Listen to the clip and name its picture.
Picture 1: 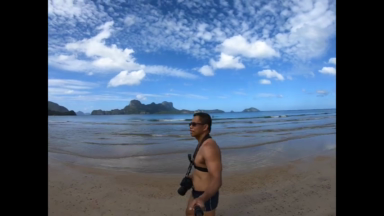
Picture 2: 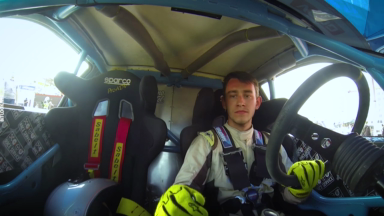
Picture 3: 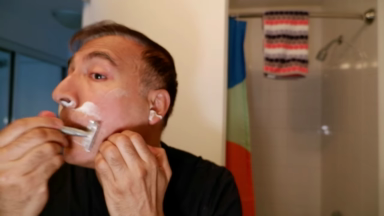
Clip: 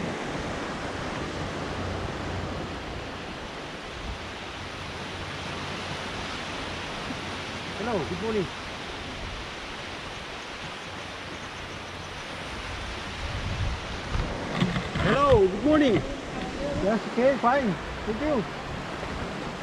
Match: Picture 1